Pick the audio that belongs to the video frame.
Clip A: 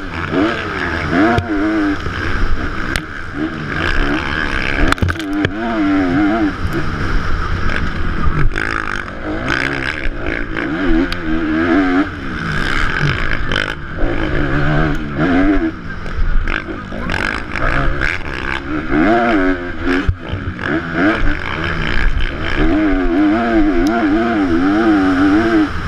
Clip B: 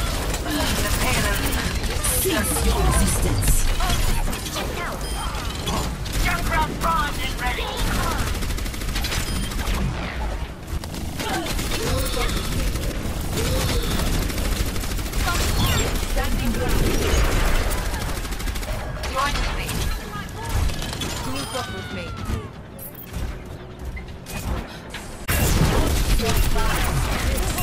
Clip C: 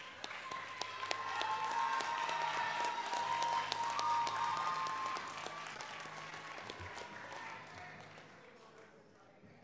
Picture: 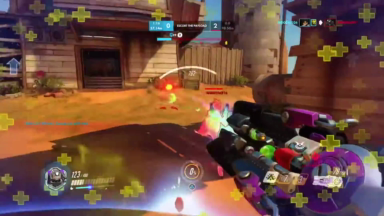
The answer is B